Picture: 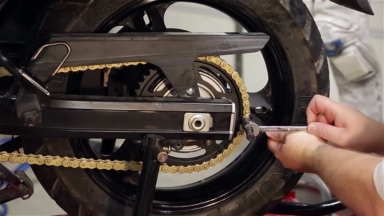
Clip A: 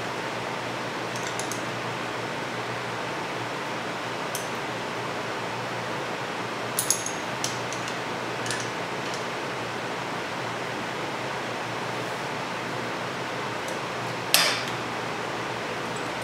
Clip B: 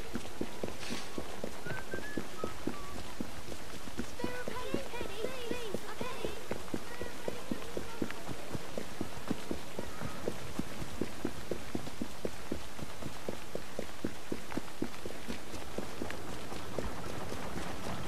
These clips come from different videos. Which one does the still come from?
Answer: A